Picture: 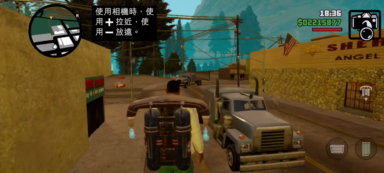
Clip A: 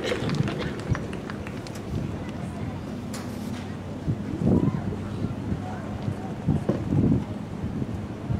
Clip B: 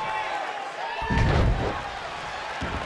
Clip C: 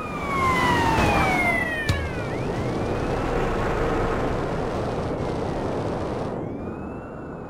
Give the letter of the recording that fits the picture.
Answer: C